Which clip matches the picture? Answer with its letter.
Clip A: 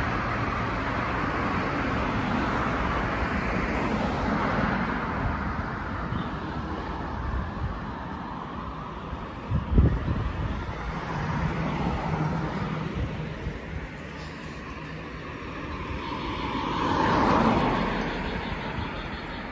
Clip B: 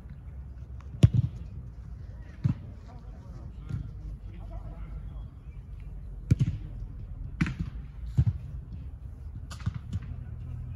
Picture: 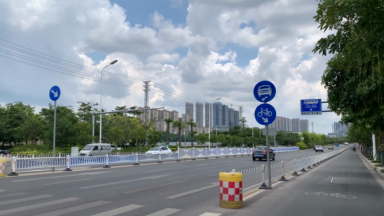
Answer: A